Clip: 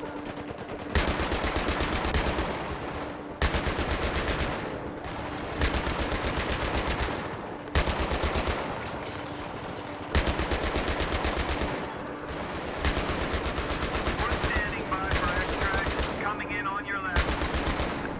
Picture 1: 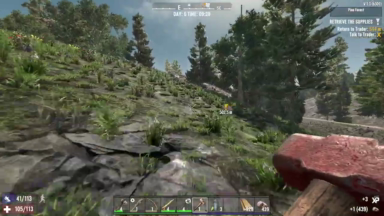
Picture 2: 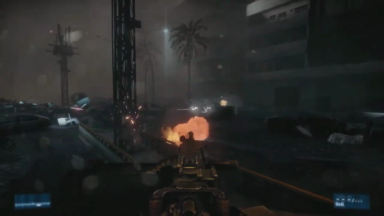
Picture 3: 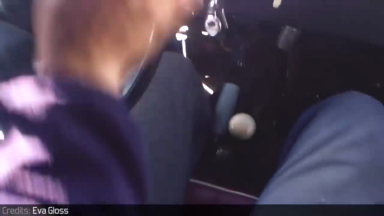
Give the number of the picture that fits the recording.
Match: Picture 2